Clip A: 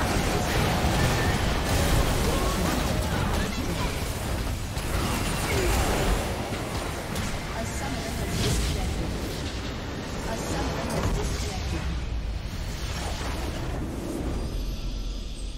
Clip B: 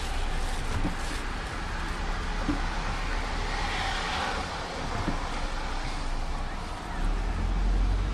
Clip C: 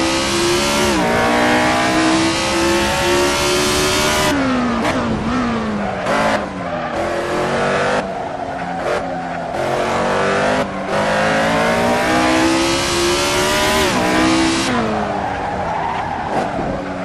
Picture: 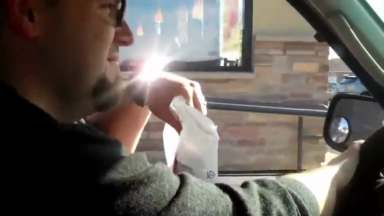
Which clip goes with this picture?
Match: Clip B